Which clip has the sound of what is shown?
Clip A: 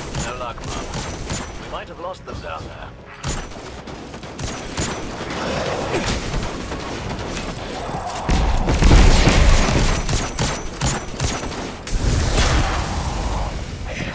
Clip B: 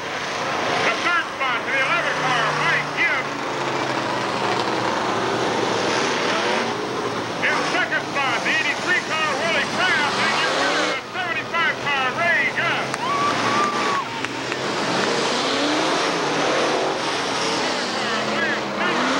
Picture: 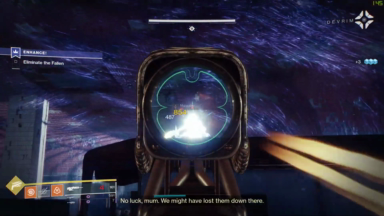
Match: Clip A